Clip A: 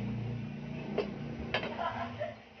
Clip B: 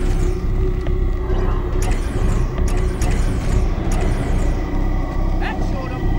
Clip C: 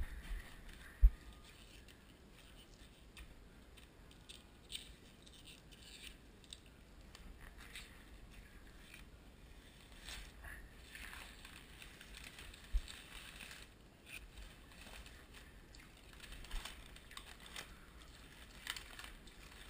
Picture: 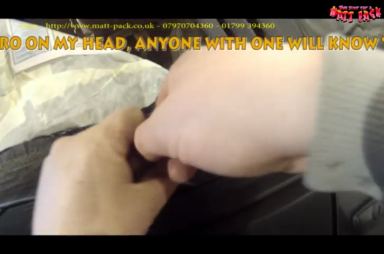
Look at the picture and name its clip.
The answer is C